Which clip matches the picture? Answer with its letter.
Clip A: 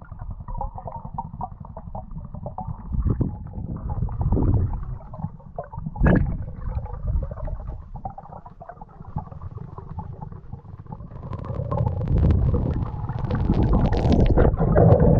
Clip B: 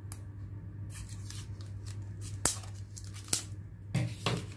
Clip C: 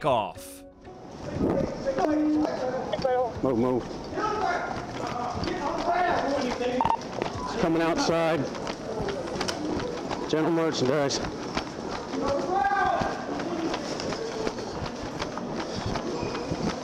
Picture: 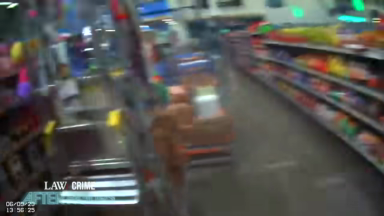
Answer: C